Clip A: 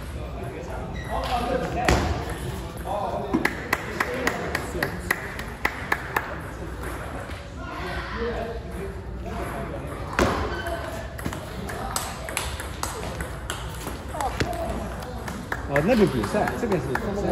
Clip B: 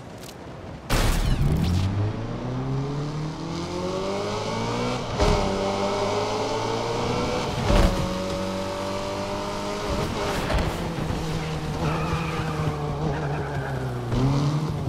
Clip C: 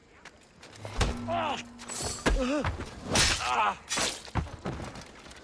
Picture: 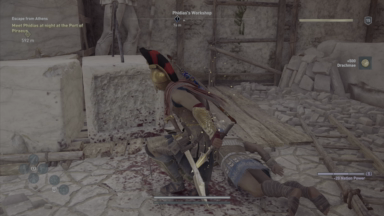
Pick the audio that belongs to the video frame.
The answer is C